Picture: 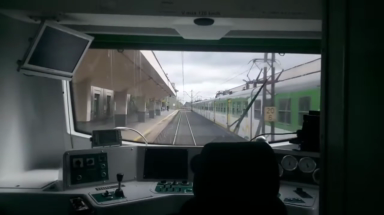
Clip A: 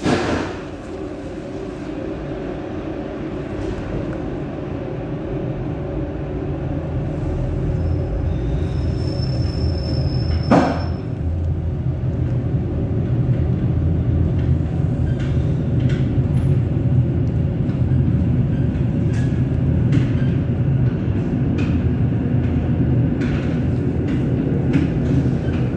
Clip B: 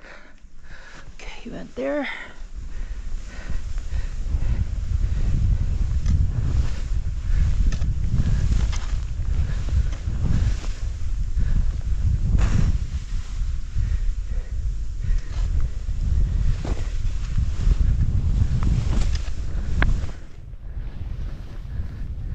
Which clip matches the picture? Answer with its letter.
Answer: A